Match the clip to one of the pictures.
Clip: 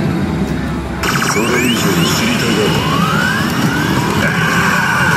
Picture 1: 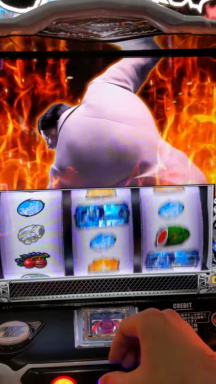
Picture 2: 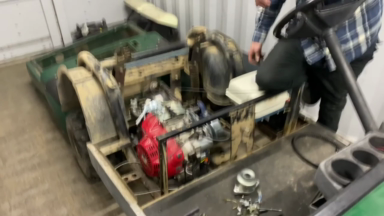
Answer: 1